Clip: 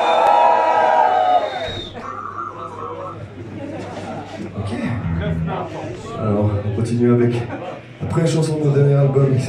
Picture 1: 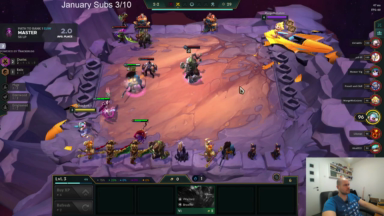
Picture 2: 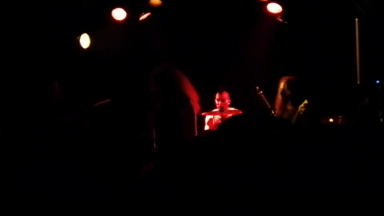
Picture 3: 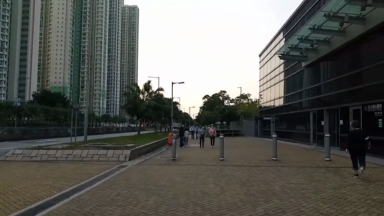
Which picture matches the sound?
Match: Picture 2